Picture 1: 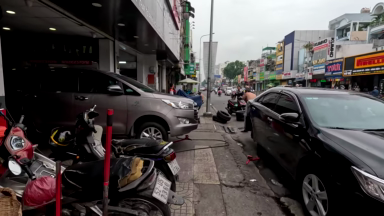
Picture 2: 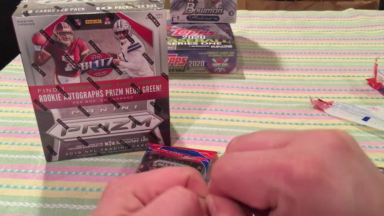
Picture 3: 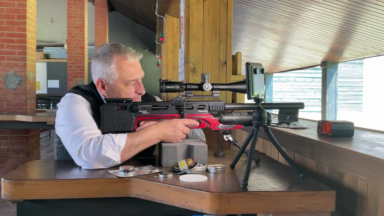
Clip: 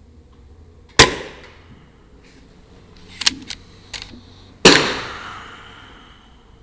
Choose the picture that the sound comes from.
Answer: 3